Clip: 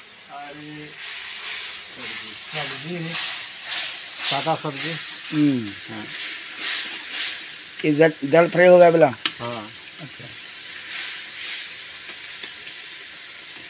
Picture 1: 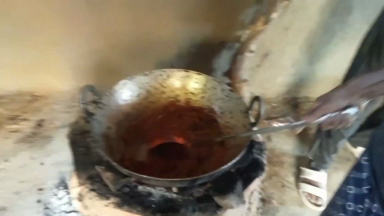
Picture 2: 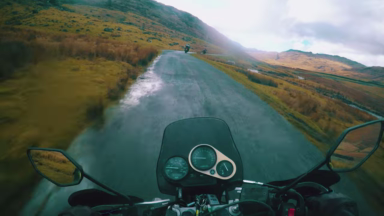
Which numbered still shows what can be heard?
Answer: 1